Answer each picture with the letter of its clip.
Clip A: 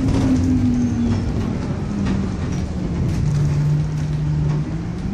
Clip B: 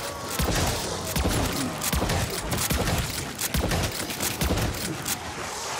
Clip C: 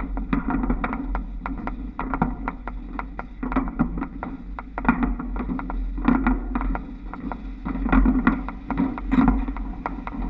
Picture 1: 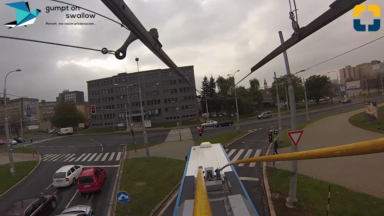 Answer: C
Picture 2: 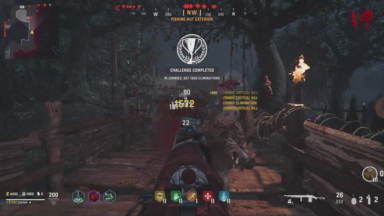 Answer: B